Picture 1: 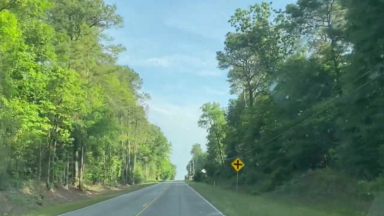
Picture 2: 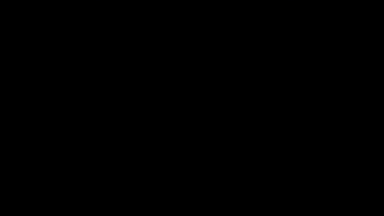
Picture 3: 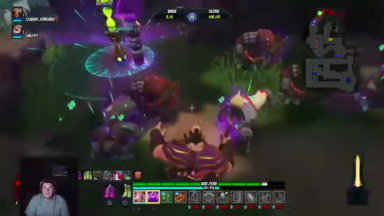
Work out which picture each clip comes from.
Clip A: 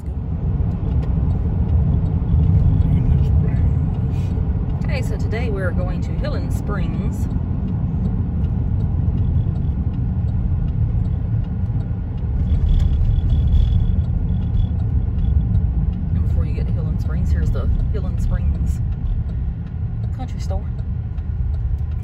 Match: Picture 1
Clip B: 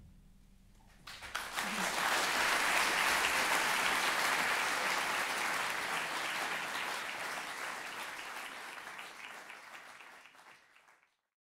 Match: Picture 2